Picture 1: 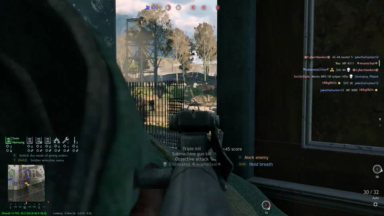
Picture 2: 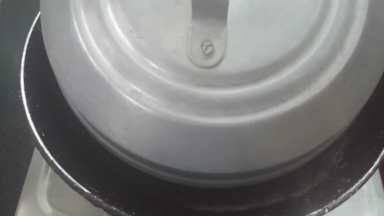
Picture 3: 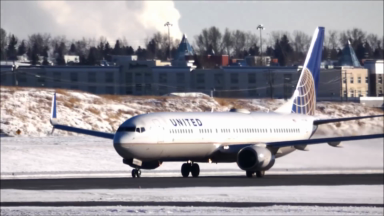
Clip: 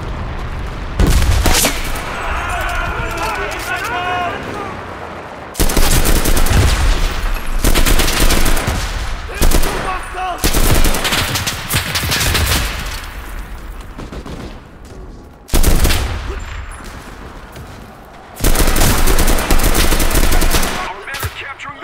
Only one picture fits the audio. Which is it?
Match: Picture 1